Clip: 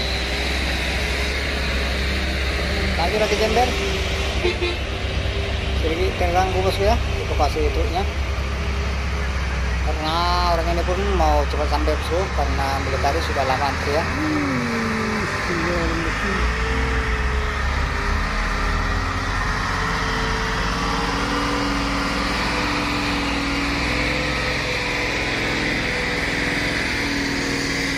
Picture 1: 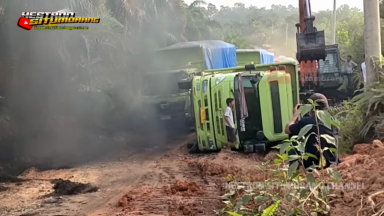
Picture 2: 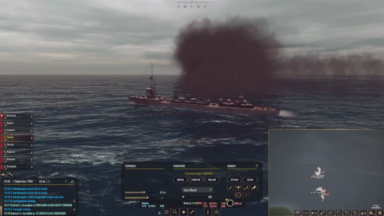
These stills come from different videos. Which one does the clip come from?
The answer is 1